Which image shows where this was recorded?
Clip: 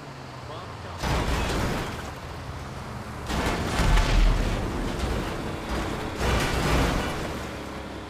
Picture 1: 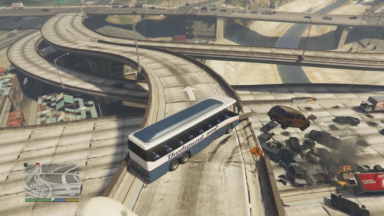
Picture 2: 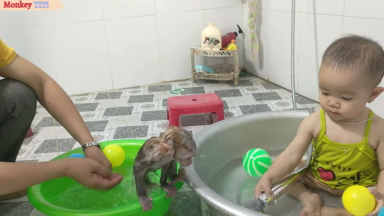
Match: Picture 1